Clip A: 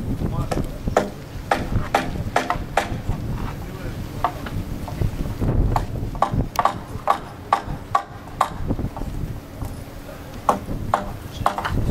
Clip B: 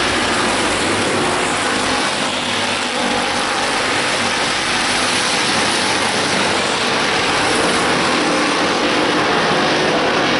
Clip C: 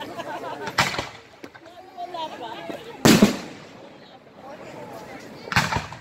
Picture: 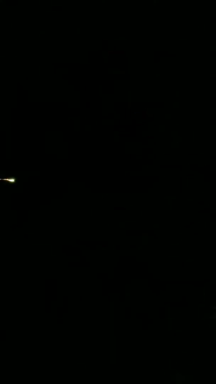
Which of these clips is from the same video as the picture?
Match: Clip C